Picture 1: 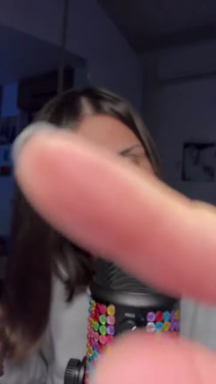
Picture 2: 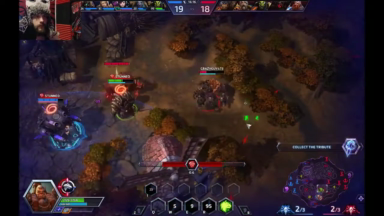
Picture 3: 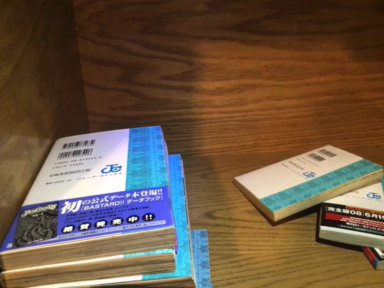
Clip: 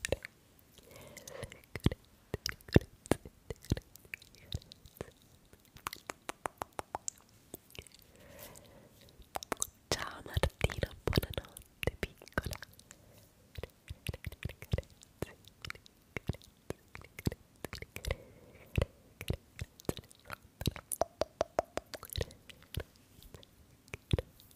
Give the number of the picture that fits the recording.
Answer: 1